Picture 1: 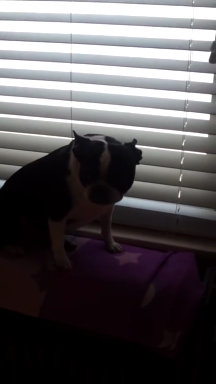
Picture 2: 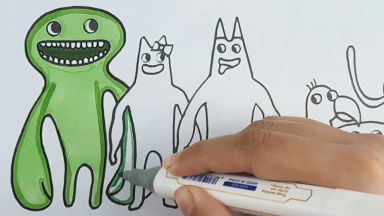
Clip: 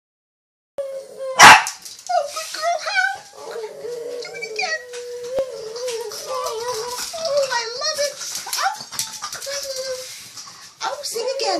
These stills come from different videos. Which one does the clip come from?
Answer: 1